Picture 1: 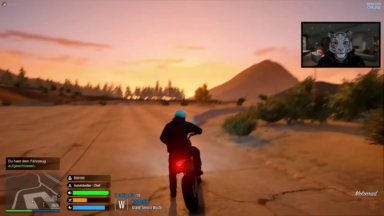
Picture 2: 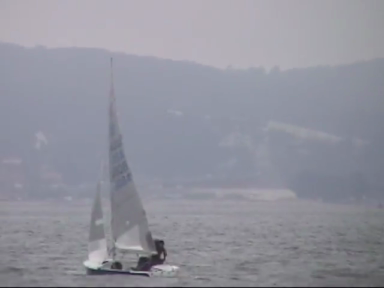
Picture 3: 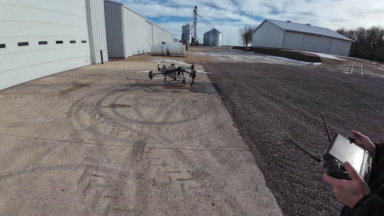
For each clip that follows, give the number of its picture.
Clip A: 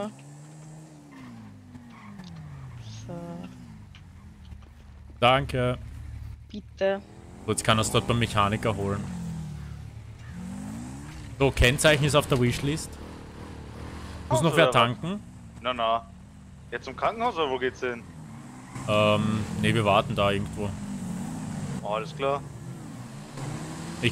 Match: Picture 1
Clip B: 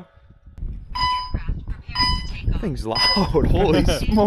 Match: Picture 3